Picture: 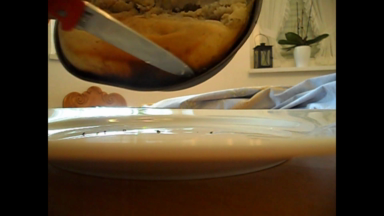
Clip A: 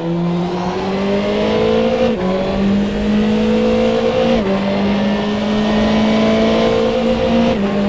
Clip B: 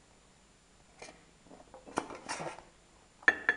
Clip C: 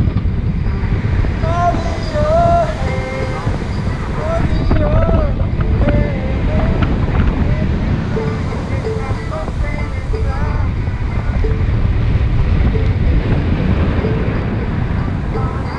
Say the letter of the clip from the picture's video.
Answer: B